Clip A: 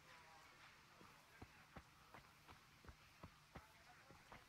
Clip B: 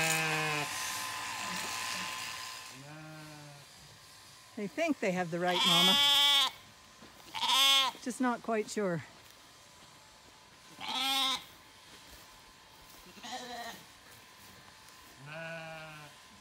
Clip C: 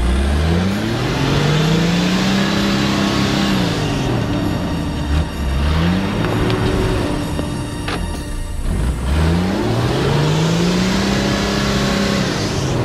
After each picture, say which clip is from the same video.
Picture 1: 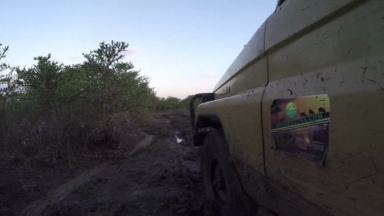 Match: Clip C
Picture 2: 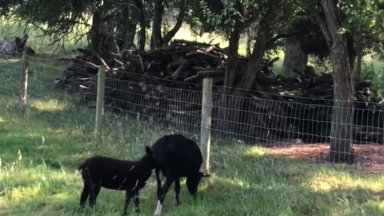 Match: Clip B